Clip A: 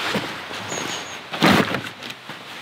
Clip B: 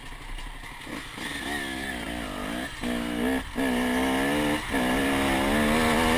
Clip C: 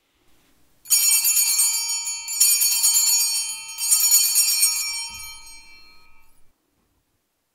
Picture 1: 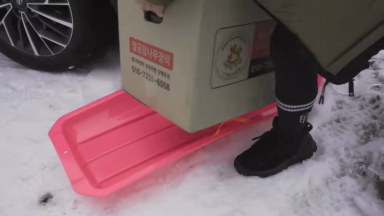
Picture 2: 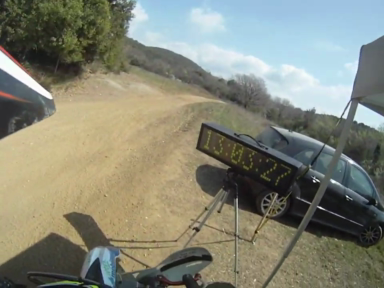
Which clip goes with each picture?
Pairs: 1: A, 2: B